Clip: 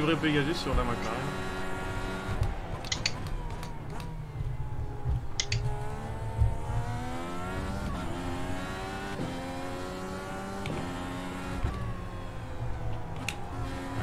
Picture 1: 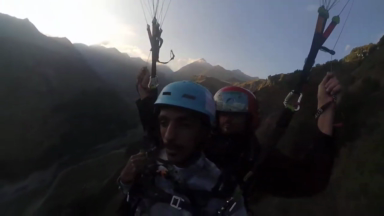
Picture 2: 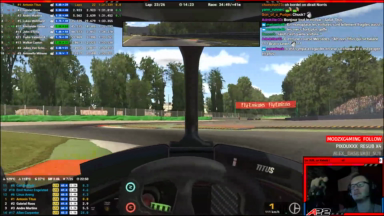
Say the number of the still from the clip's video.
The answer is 2